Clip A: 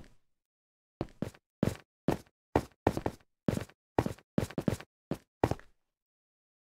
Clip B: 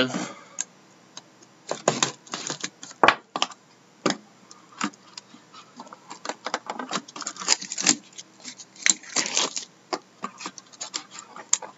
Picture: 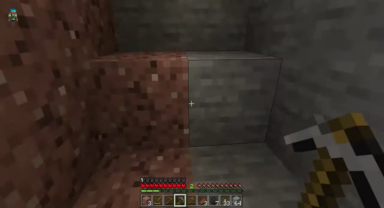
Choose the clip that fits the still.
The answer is A